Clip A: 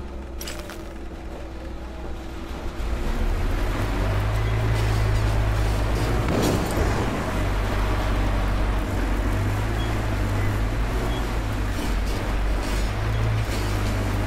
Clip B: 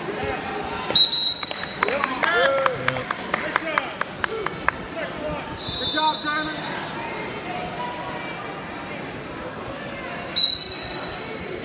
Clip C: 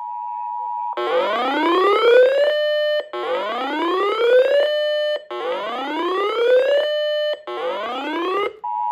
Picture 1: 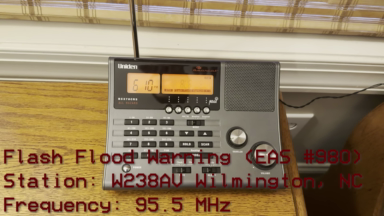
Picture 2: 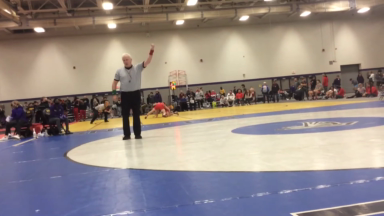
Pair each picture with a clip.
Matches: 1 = C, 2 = B